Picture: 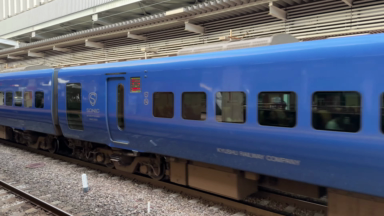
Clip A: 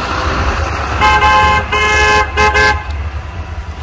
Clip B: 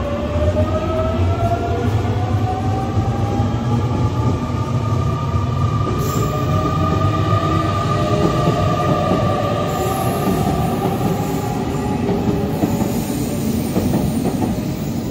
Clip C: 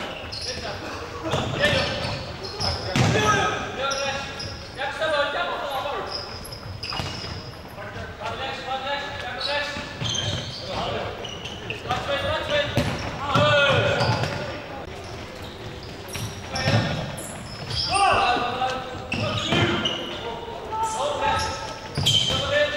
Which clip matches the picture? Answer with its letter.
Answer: B